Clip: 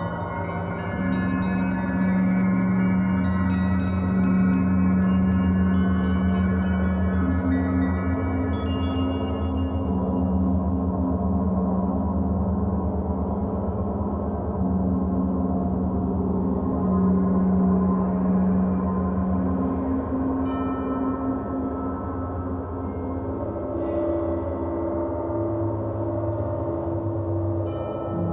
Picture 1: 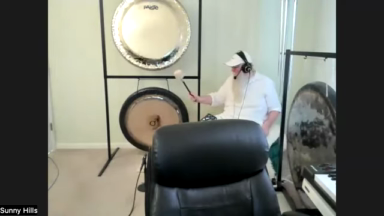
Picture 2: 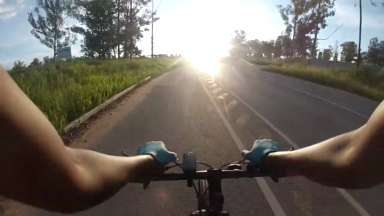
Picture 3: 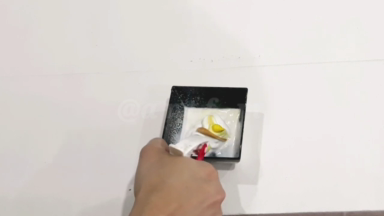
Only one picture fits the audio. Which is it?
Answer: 1